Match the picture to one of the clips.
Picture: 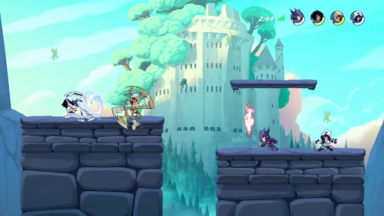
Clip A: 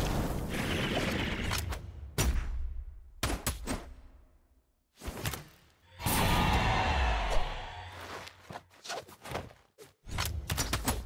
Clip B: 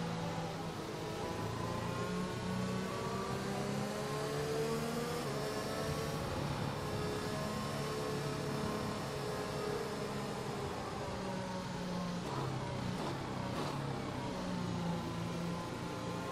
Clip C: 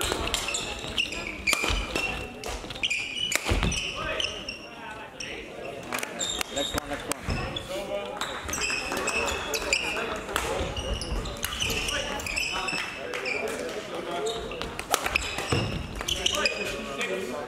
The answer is A